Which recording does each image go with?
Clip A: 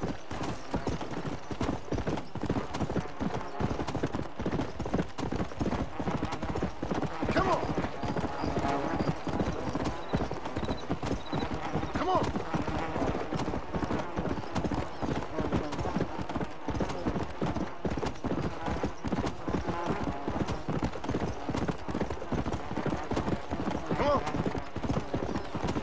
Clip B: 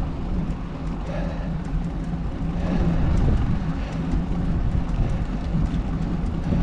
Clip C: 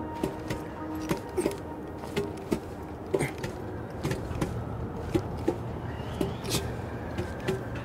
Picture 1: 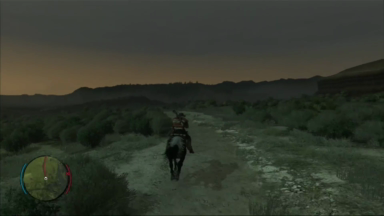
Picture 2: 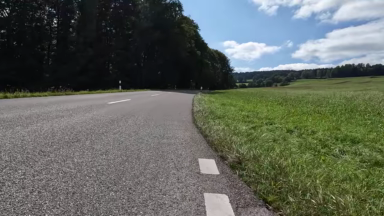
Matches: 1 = A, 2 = B